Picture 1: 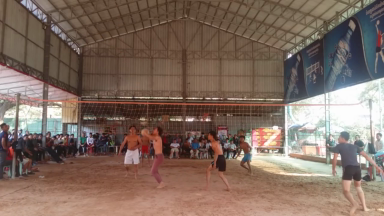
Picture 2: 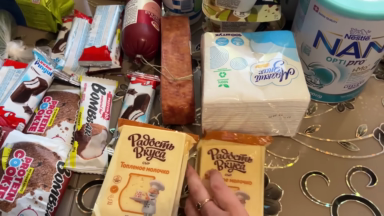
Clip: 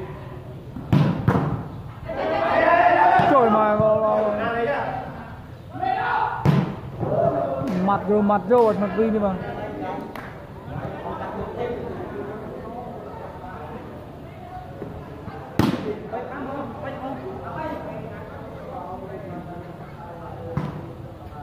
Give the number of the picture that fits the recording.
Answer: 1